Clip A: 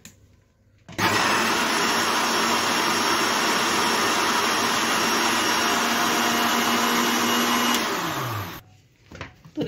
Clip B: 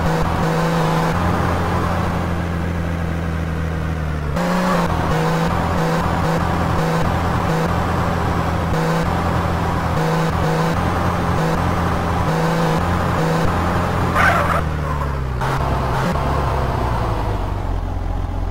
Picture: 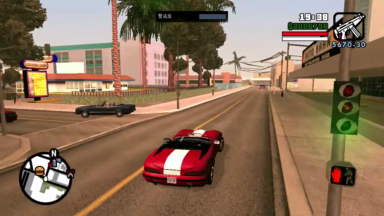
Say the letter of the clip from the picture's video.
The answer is B